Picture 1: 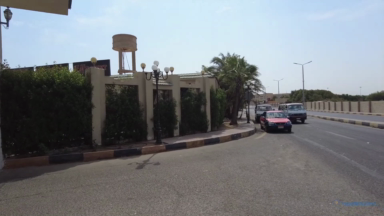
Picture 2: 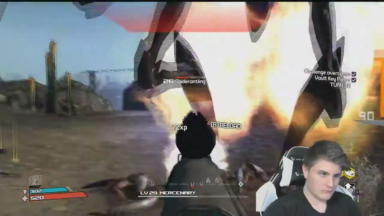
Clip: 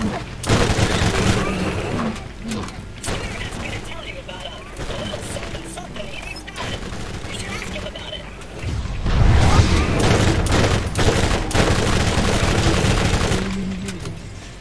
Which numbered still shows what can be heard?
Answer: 2